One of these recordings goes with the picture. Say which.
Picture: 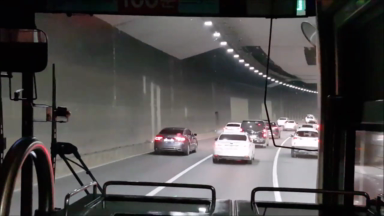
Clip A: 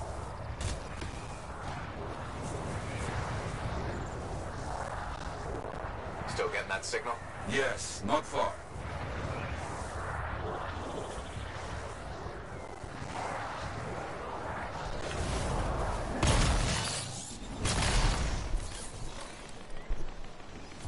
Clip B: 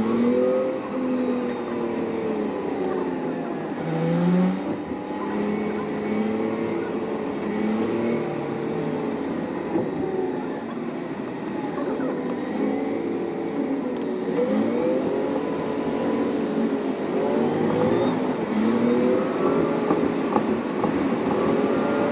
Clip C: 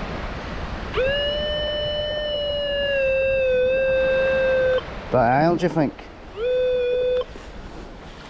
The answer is B